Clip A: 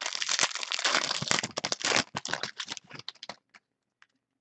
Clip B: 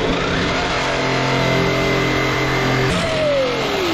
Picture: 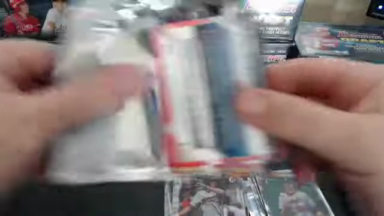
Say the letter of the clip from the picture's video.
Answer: A